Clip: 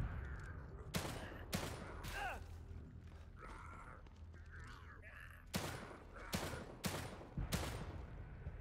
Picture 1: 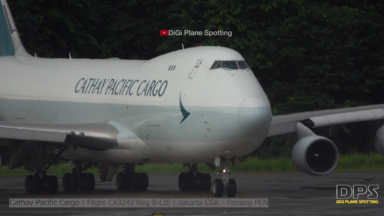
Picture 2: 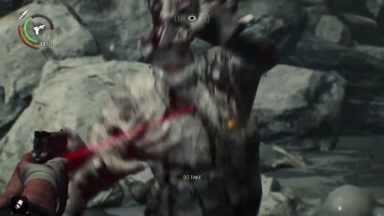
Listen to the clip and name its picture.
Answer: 2